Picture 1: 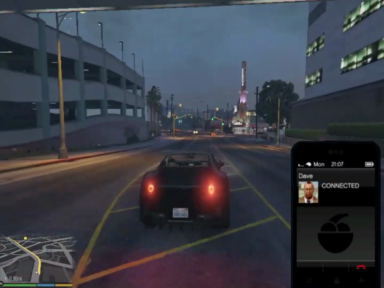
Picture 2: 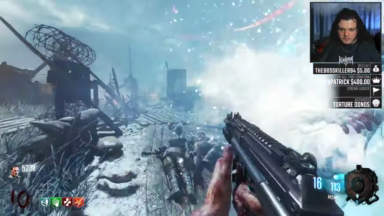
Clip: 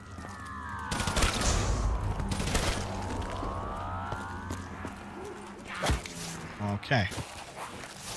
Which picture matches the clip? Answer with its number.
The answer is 2